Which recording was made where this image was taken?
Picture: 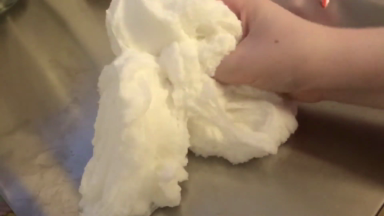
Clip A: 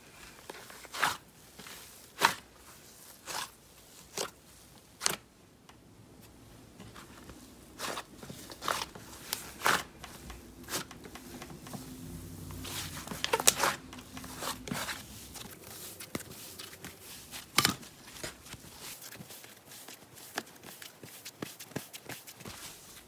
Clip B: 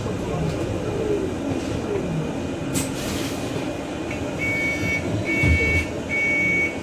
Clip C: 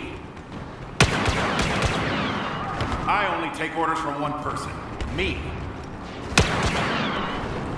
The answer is A